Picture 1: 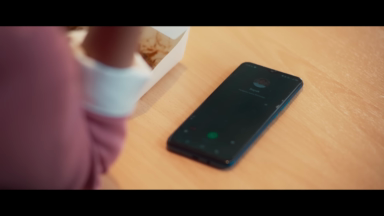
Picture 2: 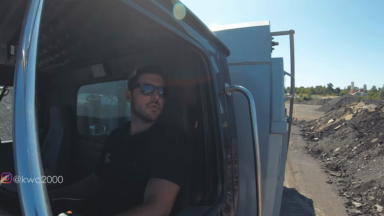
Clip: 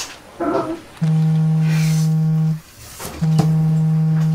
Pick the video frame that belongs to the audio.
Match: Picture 1